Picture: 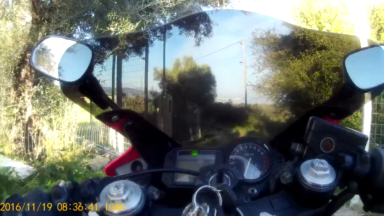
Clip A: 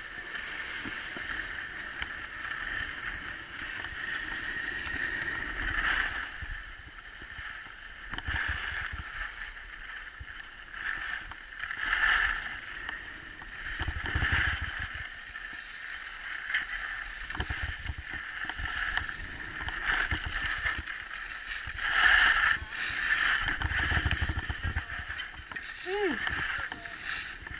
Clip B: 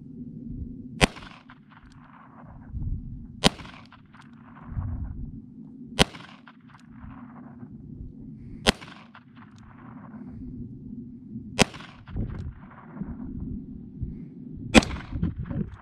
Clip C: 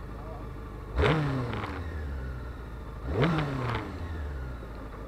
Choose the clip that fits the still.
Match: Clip C